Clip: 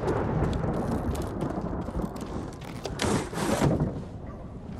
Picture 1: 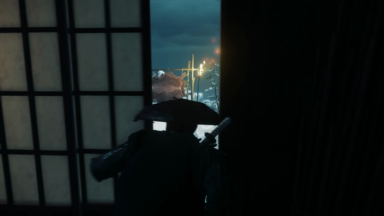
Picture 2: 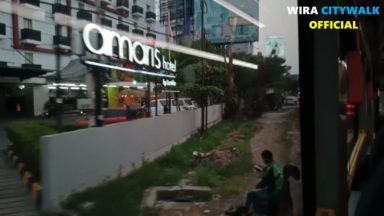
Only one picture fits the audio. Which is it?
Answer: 1